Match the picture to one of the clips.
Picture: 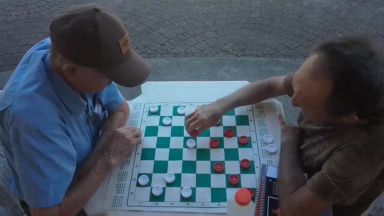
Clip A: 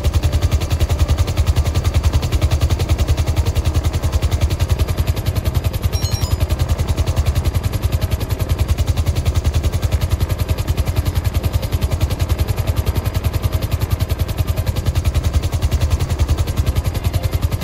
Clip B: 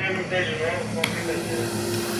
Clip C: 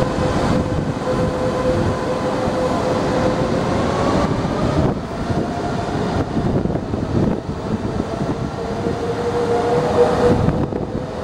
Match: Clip B